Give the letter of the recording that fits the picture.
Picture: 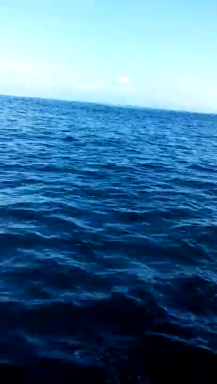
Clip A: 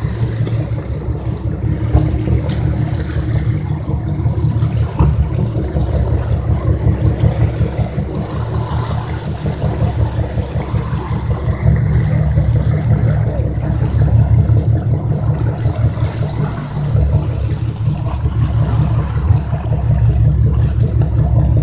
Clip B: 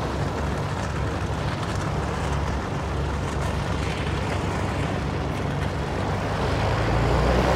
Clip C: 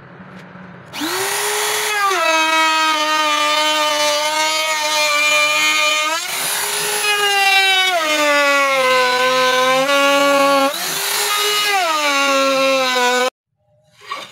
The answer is A